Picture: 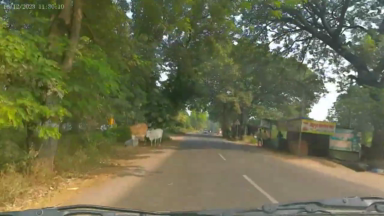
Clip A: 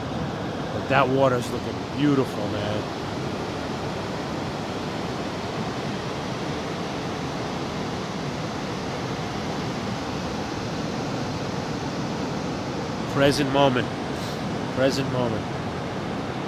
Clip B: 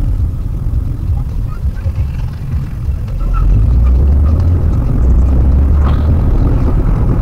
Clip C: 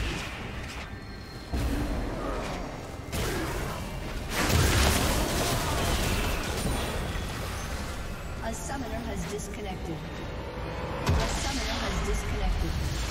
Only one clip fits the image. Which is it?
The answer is B